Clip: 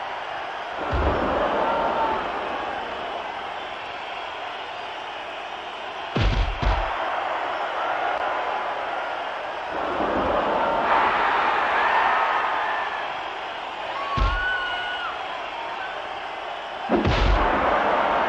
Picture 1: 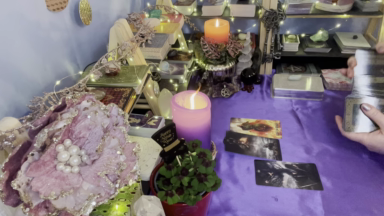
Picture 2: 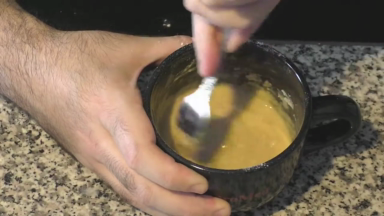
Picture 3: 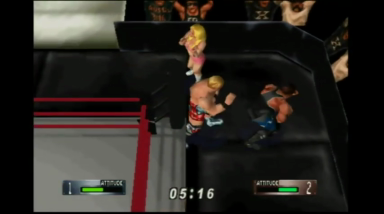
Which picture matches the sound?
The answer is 3